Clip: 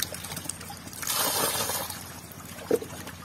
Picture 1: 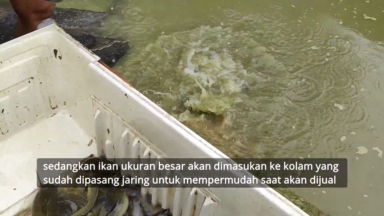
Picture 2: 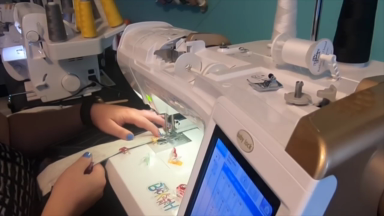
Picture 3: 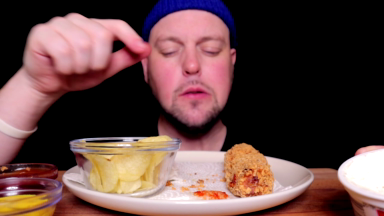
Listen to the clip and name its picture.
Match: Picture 1